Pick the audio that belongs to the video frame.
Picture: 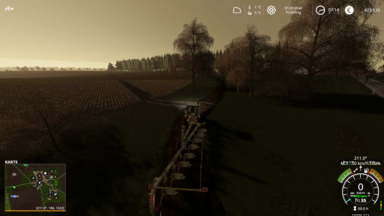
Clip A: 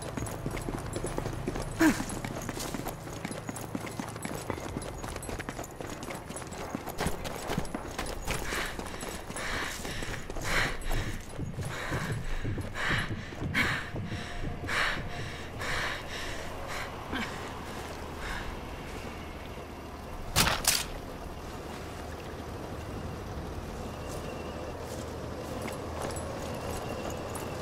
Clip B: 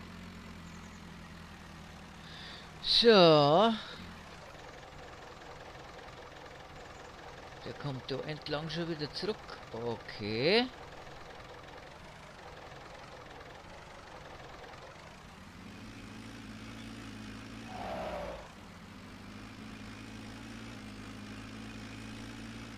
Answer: B